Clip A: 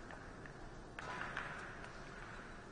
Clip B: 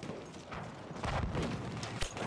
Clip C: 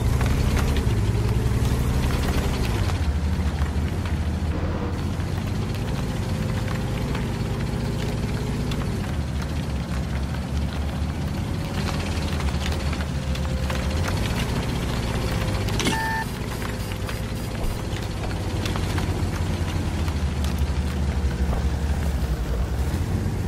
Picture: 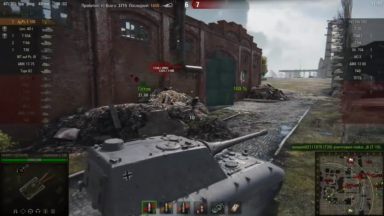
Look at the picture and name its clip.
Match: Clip C